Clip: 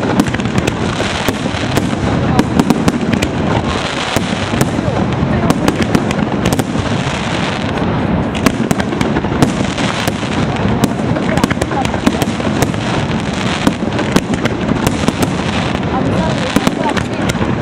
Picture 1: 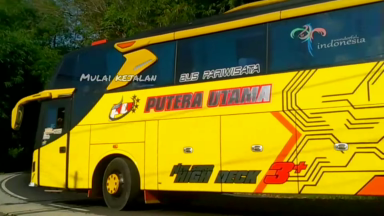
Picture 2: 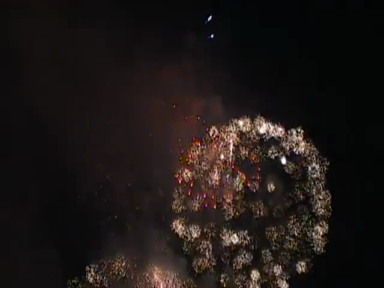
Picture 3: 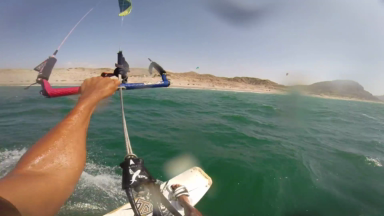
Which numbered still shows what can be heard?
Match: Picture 2